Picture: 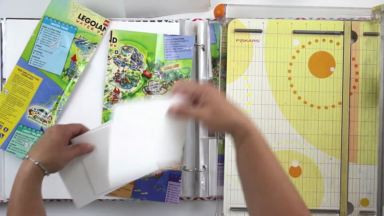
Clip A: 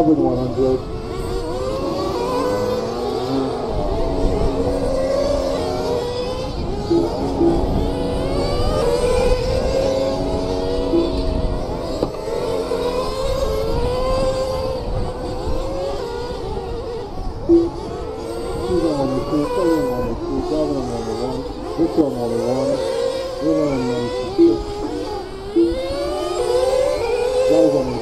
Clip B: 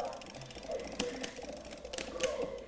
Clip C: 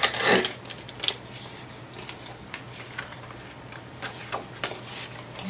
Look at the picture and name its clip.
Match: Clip C